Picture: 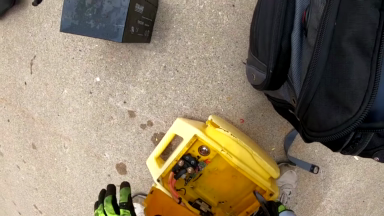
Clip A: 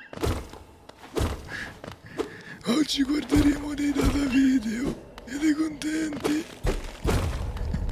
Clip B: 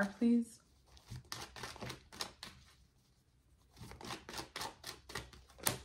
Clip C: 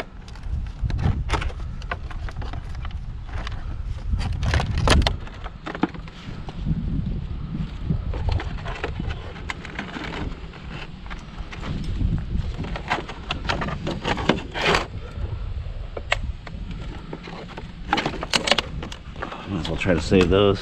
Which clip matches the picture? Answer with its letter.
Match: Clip C